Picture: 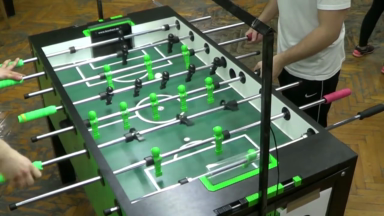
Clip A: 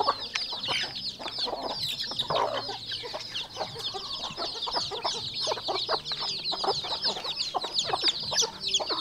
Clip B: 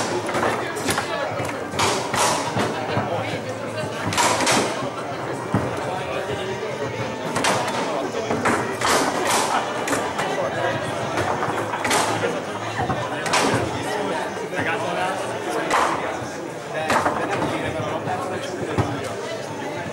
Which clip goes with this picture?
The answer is B